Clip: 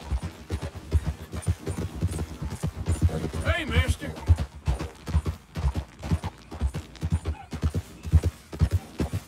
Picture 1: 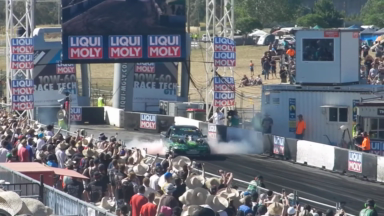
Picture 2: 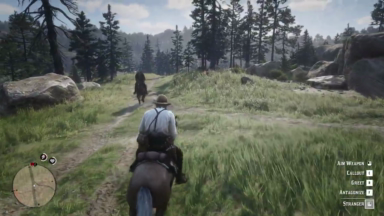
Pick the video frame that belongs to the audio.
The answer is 2